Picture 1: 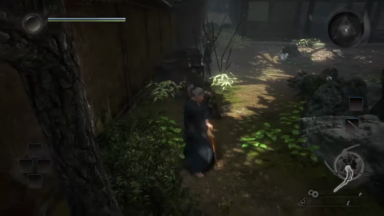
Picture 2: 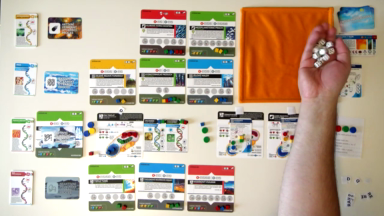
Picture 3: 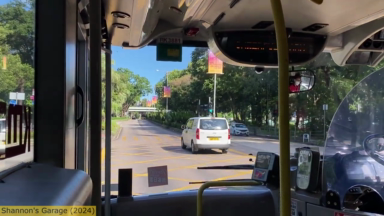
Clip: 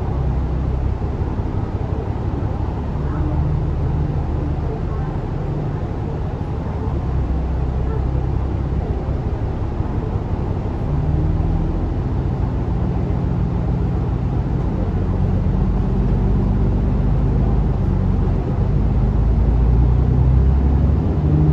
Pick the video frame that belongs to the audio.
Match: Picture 3